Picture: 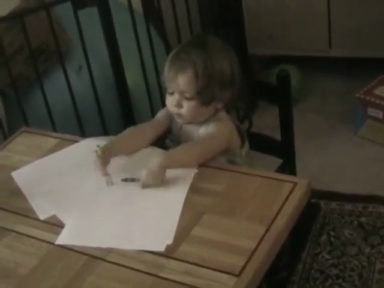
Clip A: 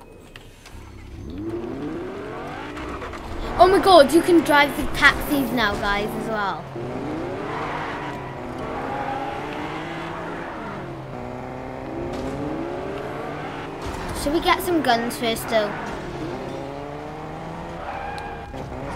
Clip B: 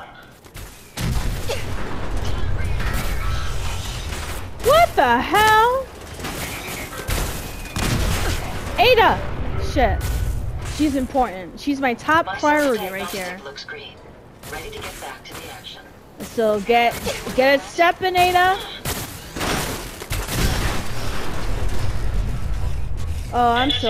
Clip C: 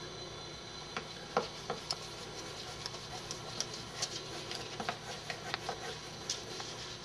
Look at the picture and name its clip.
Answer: C